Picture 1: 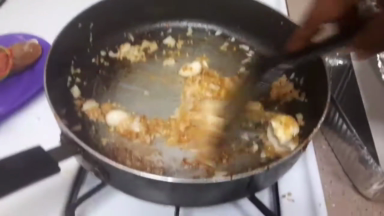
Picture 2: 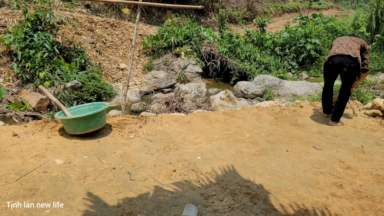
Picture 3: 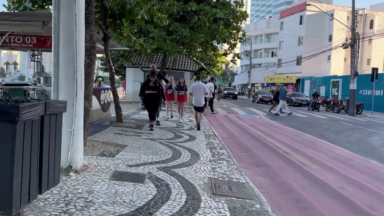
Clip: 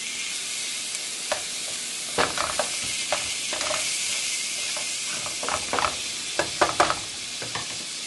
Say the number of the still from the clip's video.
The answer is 1